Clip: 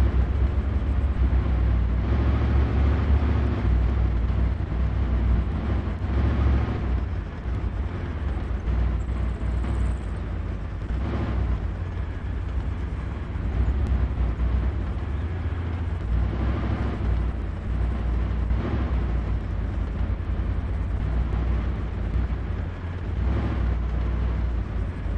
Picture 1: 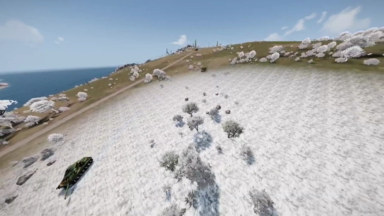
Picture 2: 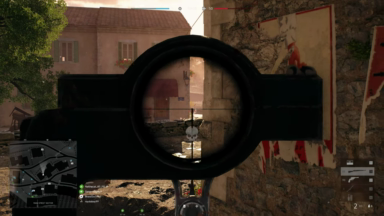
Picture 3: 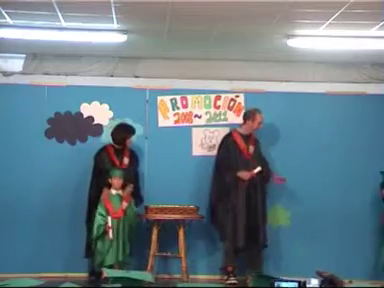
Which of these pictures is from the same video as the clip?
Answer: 1